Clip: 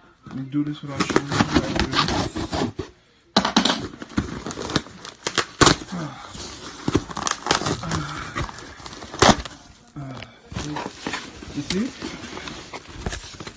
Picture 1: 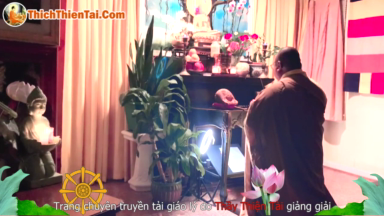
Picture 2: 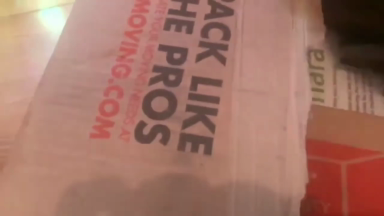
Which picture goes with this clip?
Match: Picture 2